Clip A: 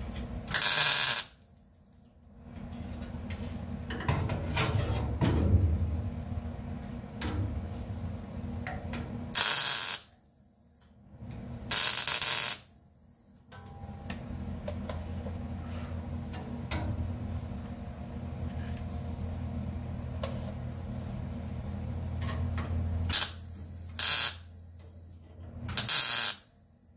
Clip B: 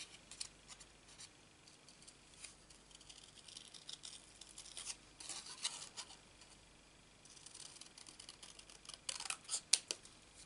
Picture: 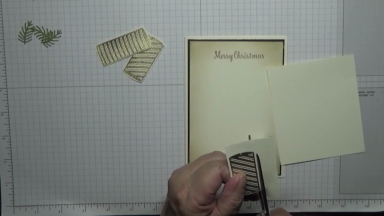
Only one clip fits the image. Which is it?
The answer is B